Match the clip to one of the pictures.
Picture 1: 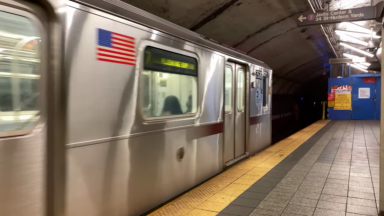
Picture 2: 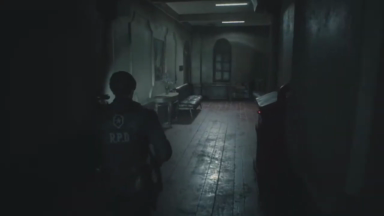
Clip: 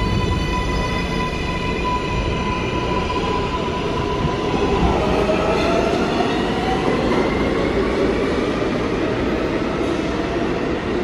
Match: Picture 1